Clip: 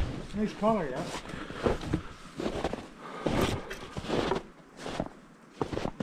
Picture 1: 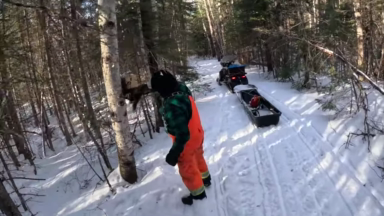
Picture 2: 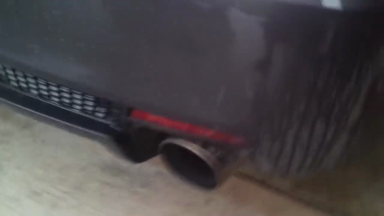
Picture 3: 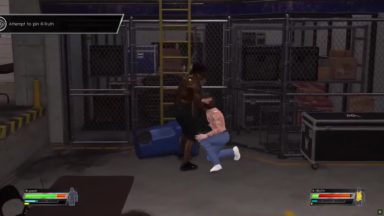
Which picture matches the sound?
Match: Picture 1